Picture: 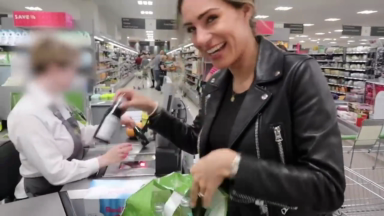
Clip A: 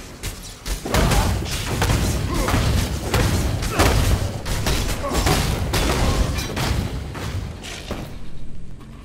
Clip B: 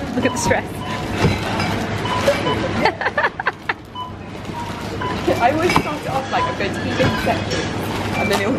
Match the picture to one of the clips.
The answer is B